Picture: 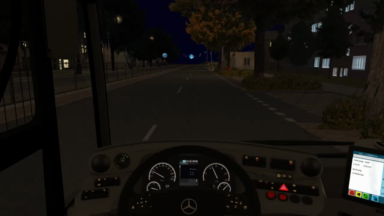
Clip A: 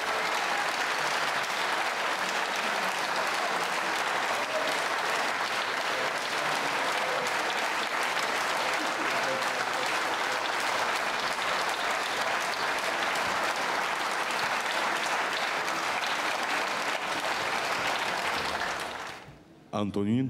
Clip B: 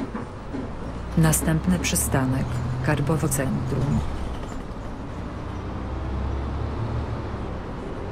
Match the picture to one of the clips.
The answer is B